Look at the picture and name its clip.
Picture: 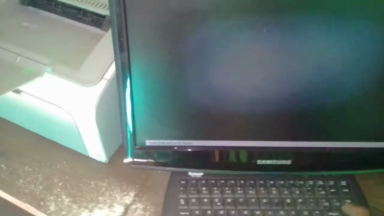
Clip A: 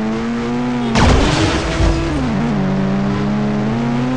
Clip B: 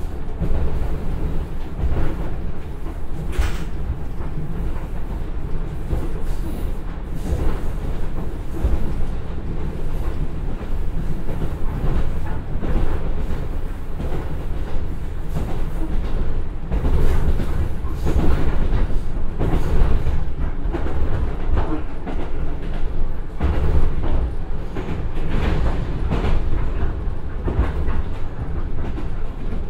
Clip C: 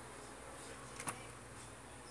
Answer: C